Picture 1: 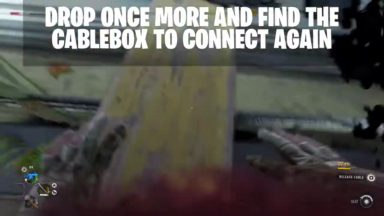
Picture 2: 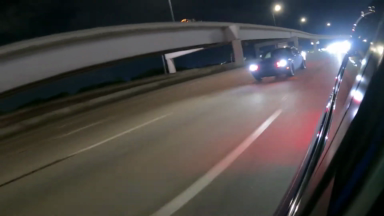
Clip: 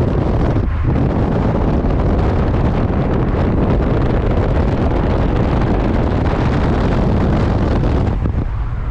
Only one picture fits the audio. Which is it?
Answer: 2